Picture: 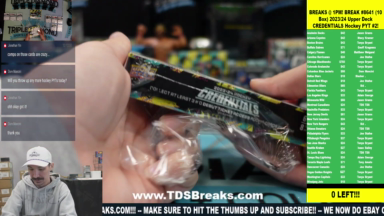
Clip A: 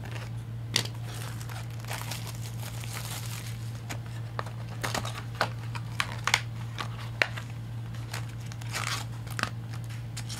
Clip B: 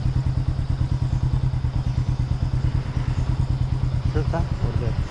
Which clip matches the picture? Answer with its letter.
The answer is A